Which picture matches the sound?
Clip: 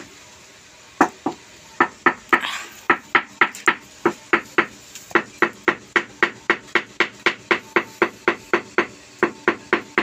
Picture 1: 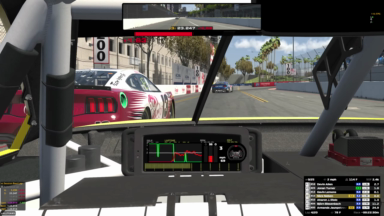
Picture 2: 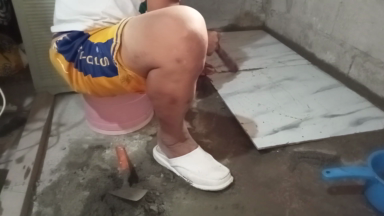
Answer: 2